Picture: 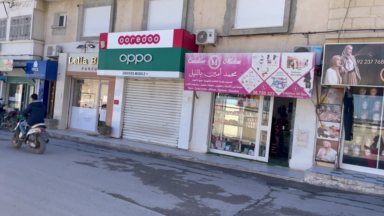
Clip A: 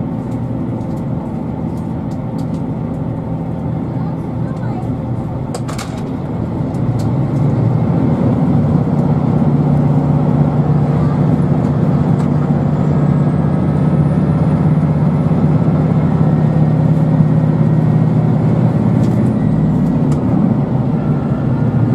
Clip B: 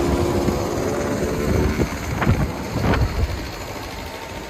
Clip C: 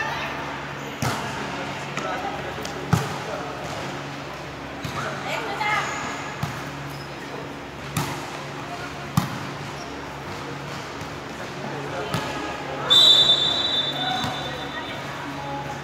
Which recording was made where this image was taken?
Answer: B